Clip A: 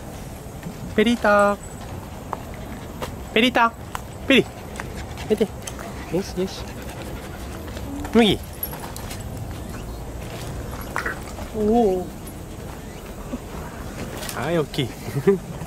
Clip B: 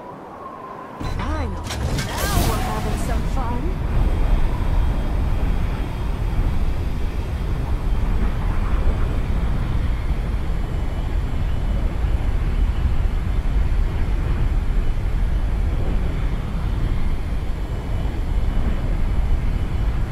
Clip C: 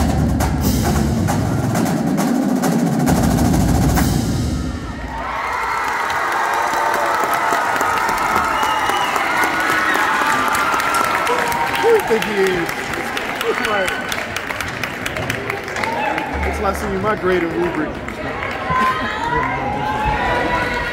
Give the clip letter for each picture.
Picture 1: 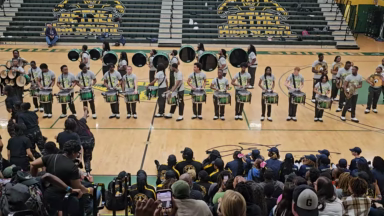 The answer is C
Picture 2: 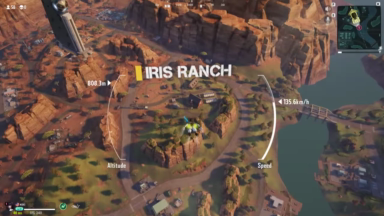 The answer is B